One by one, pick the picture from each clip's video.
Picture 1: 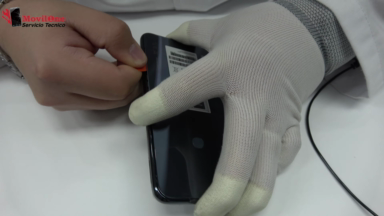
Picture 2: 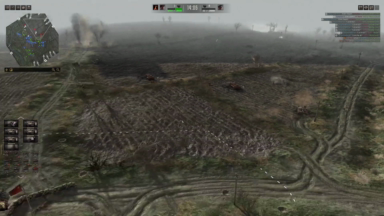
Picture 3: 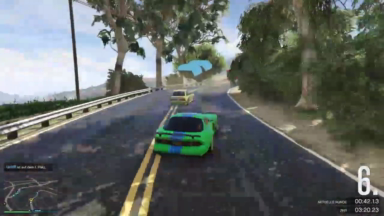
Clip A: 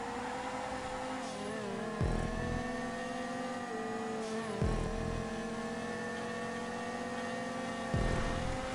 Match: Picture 3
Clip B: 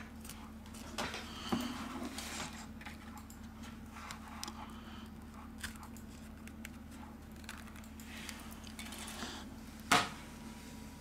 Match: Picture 1